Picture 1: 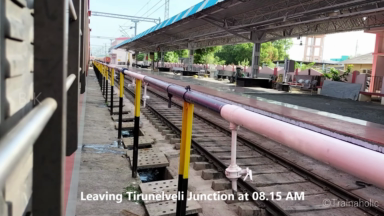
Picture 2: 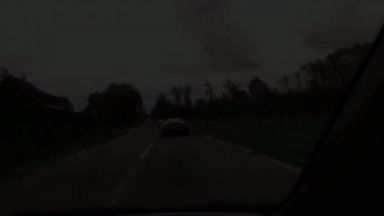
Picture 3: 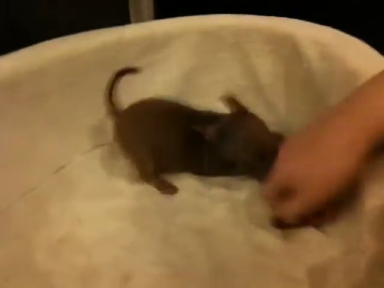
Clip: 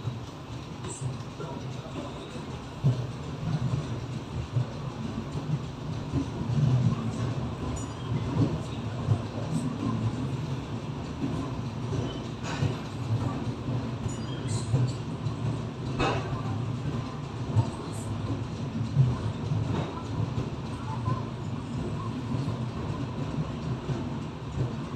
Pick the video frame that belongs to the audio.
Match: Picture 1